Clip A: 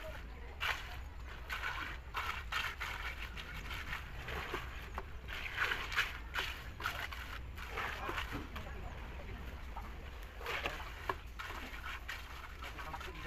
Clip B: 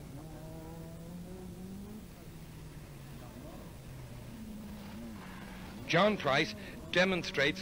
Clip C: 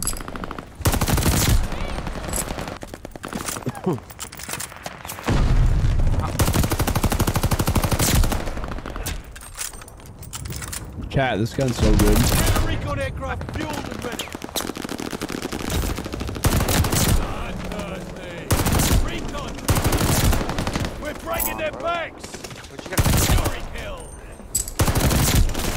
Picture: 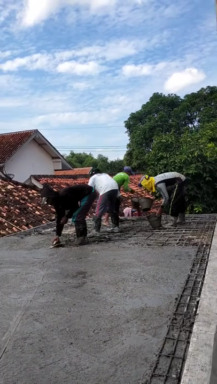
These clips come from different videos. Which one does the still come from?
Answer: A